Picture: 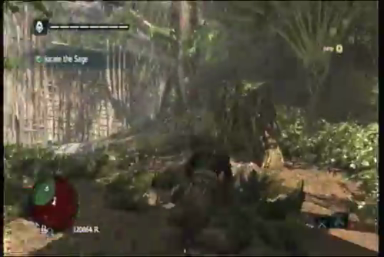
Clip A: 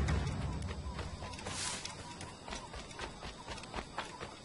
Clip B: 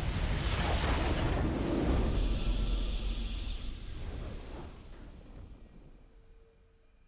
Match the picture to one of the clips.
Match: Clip A